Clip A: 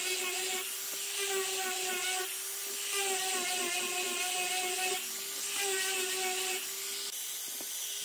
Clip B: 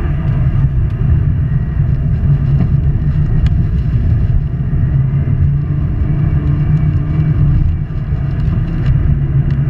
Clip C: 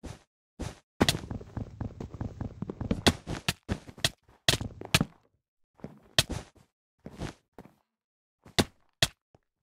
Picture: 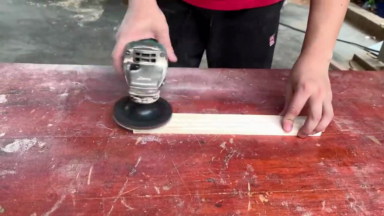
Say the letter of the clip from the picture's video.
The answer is A